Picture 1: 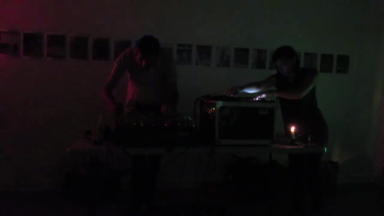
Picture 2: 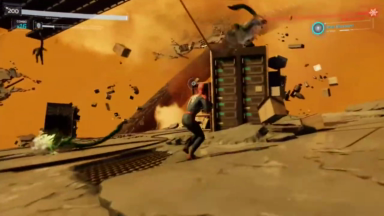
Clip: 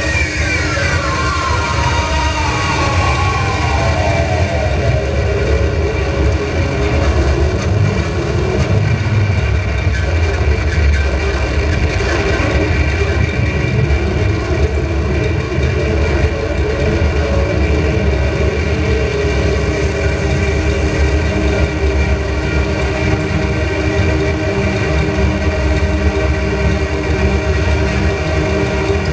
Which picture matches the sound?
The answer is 1